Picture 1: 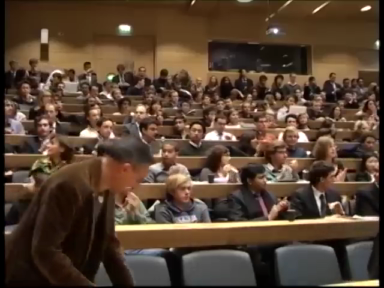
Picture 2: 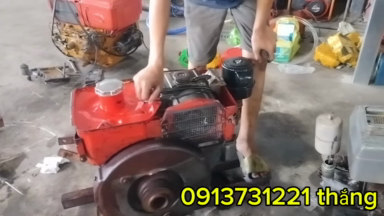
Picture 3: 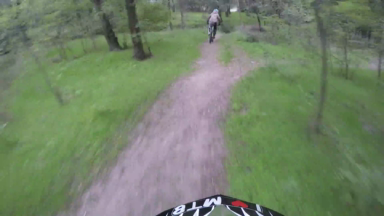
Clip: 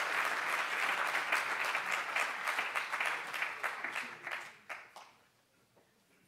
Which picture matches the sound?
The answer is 1